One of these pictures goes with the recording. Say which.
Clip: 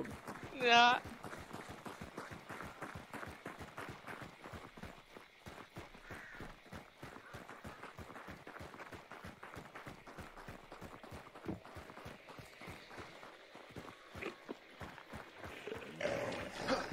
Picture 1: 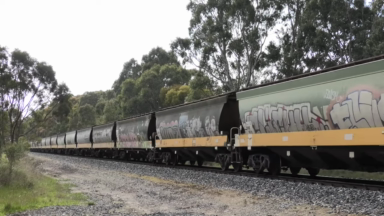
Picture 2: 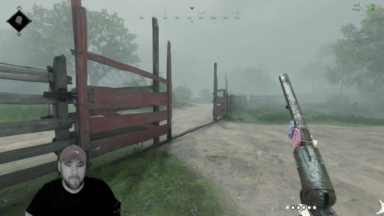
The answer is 2